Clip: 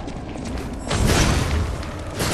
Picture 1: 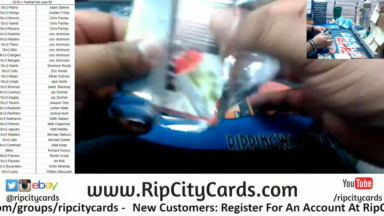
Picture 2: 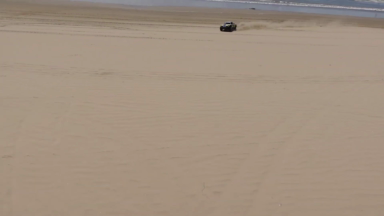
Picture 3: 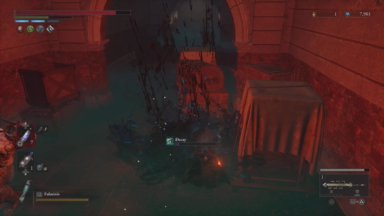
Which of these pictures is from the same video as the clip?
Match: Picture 3